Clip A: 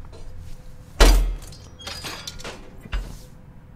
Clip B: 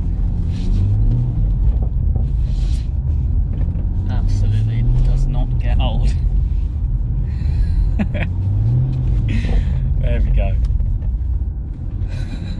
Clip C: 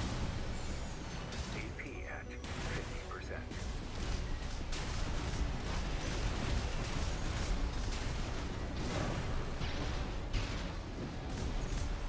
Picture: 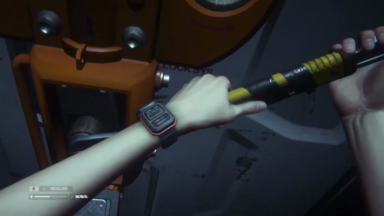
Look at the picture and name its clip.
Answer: A